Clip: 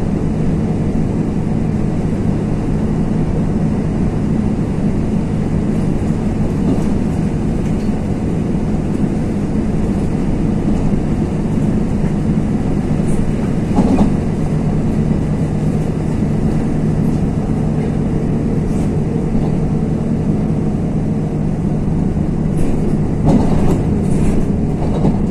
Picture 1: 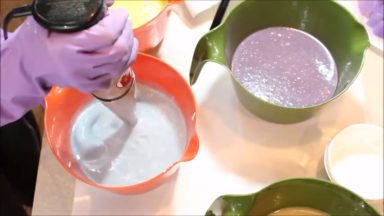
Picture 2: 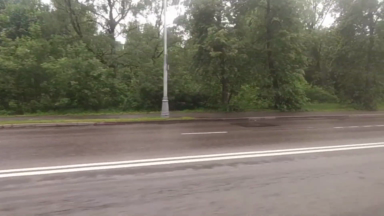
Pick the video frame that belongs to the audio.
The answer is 2